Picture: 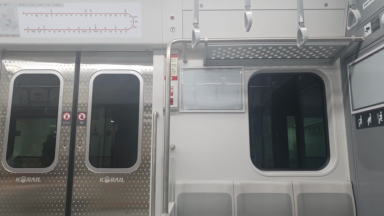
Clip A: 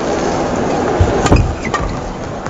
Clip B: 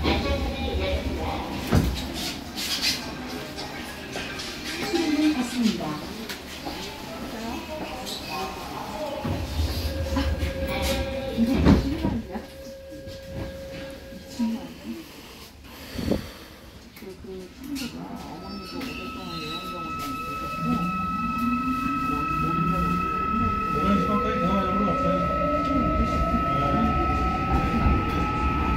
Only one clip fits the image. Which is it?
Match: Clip B